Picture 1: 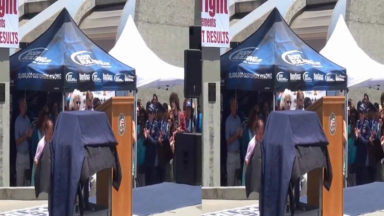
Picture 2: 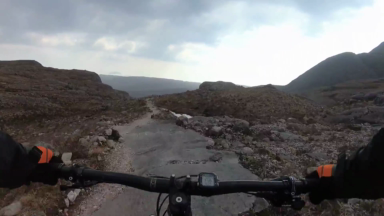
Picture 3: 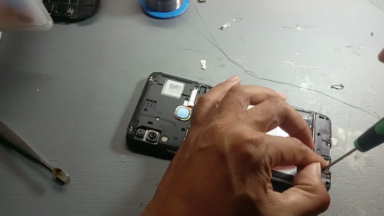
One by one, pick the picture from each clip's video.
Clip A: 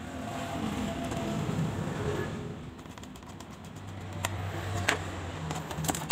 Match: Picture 3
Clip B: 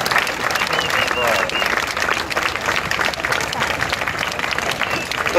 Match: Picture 1